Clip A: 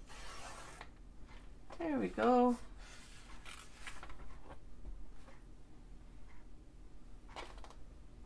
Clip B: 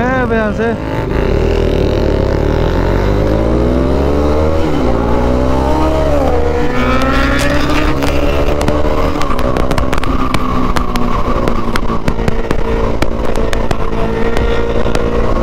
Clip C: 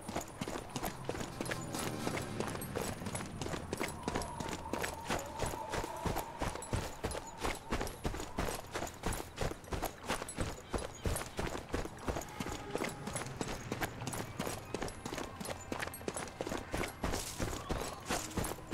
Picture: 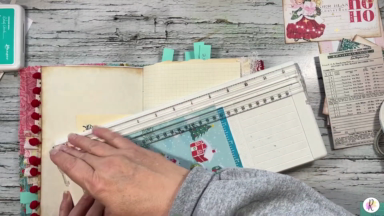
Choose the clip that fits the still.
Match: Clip A